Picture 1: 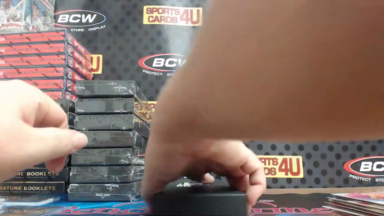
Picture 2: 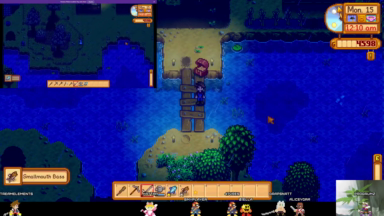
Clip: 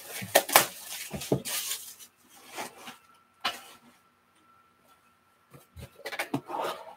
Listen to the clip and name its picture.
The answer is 1